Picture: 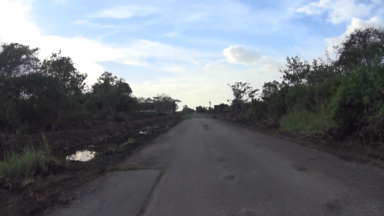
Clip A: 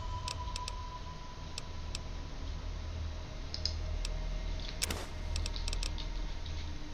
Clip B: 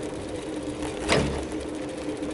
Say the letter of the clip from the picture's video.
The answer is B